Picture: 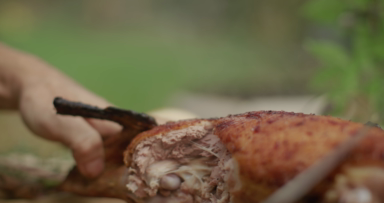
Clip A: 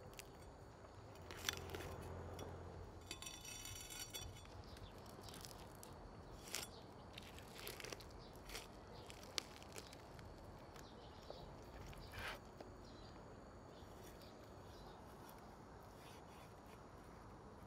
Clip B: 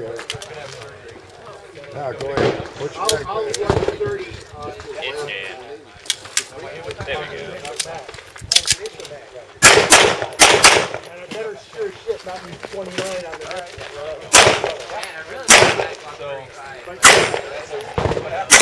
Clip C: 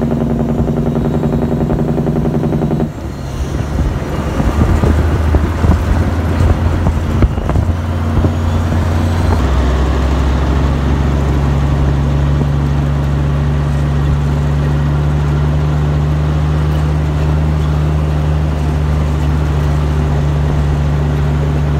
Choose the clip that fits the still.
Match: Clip A